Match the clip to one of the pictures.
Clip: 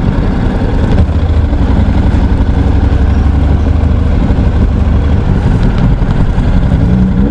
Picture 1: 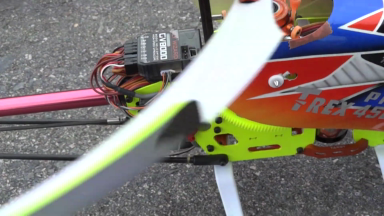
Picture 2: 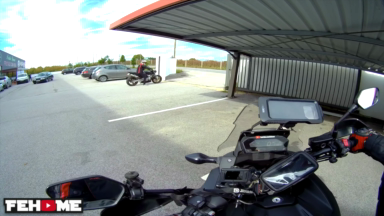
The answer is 2